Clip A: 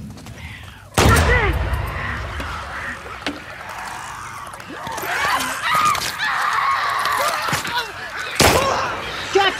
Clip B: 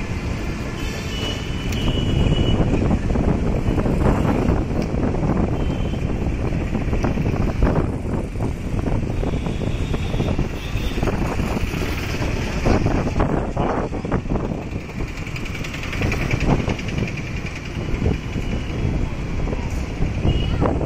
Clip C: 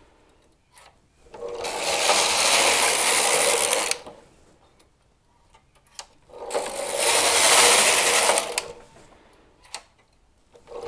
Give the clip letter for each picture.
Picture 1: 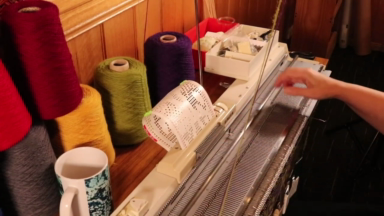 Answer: C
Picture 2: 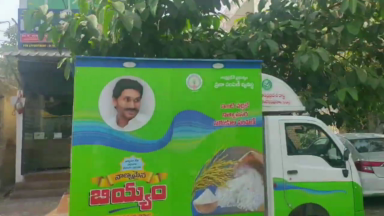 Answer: B